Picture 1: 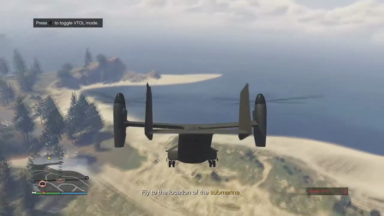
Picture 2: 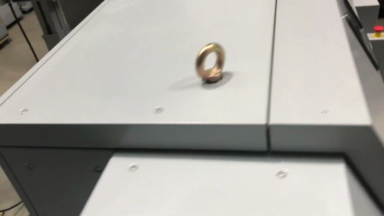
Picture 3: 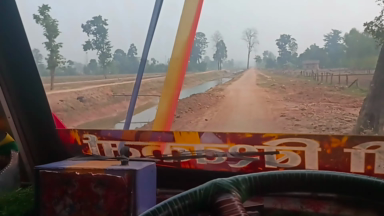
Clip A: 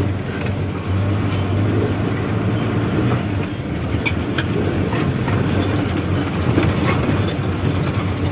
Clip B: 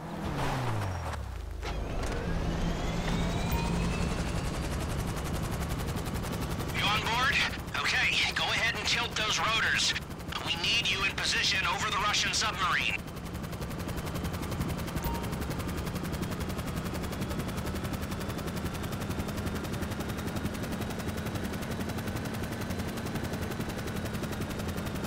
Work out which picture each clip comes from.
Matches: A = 3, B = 1